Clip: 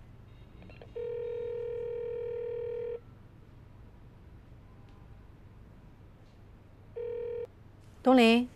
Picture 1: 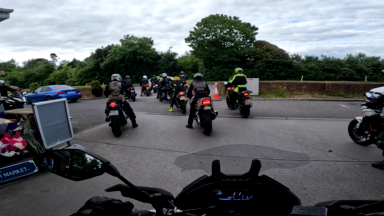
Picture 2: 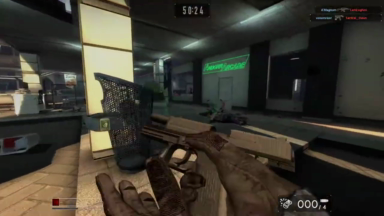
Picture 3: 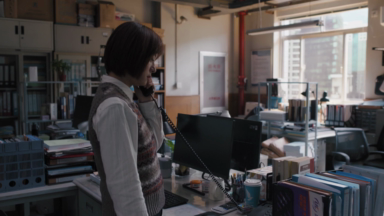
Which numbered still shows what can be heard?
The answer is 3